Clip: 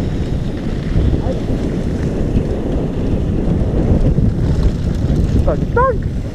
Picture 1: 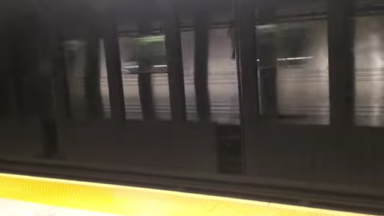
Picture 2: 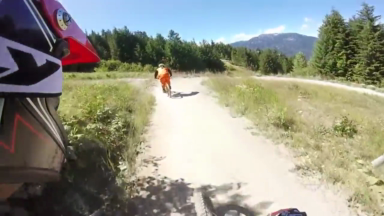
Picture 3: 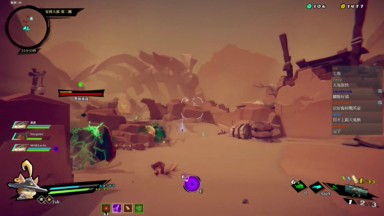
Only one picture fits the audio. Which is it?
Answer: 2